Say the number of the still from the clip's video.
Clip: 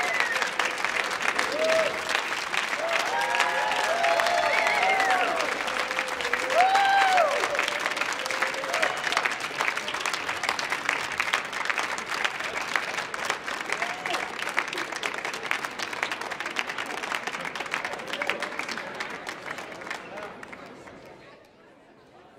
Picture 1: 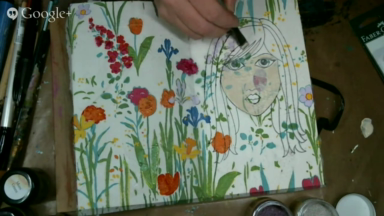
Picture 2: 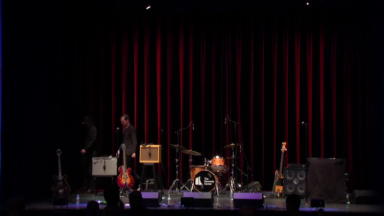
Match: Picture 2